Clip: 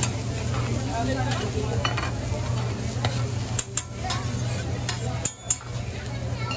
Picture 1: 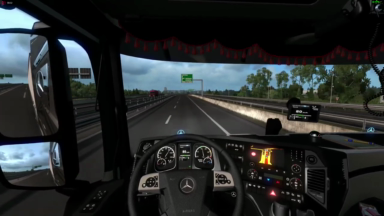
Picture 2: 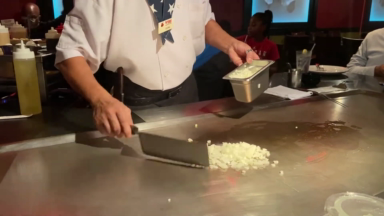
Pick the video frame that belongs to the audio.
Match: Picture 2